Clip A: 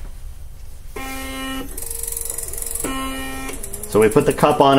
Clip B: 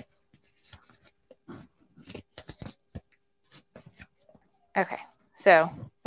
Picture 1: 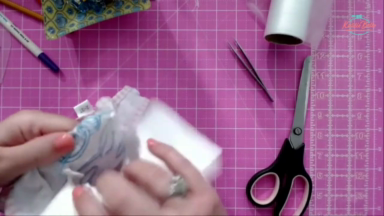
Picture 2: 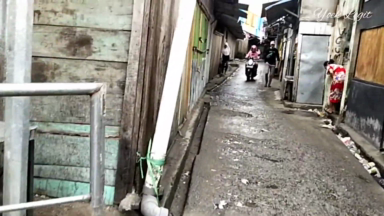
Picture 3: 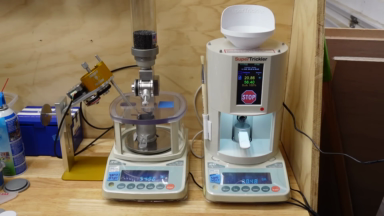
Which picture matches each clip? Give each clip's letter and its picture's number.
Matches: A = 3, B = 1